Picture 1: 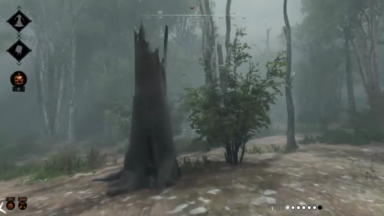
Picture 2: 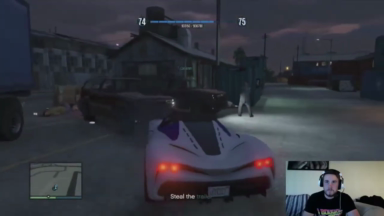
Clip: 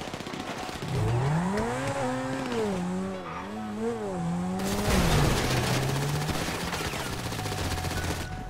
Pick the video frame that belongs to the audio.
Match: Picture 2